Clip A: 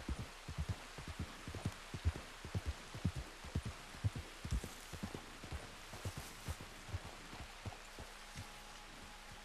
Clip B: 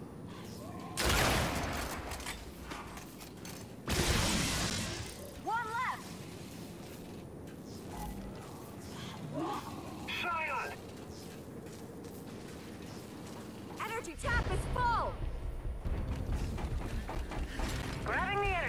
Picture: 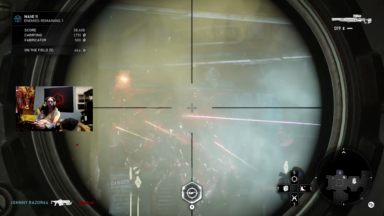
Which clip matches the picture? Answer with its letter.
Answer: B